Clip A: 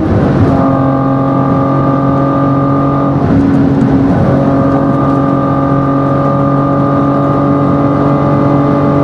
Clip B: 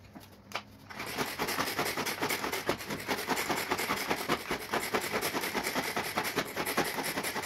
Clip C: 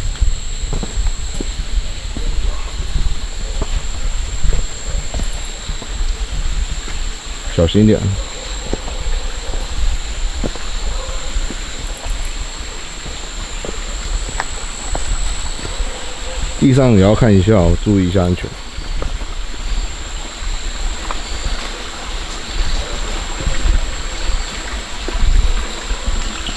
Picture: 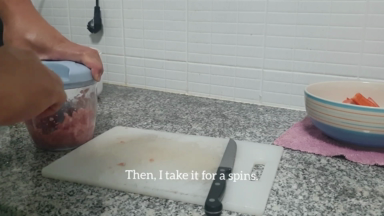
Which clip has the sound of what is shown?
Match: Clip B